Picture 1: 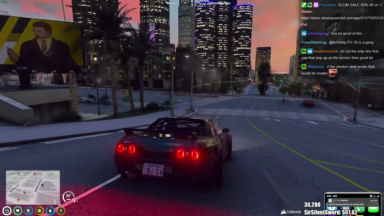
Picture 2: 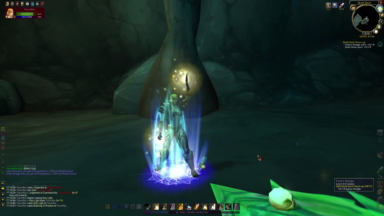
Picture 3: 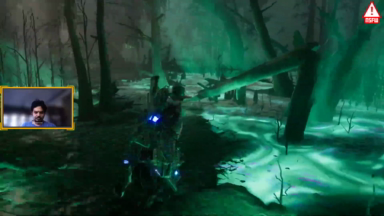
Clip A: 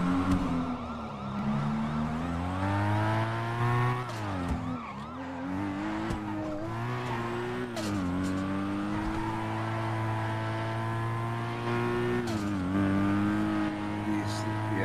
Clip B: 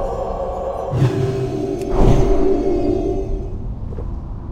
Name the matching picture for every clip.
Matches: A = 1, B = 2